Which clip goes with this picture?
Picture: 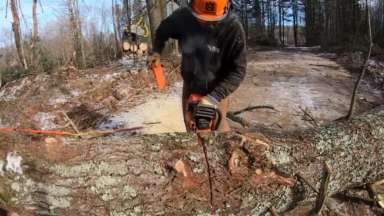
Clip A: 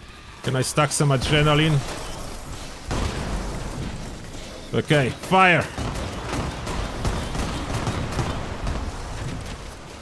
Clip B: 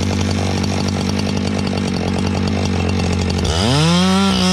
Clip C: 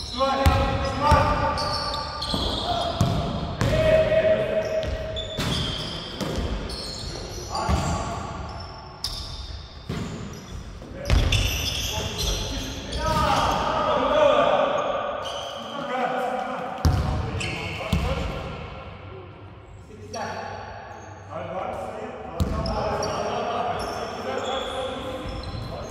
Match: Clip B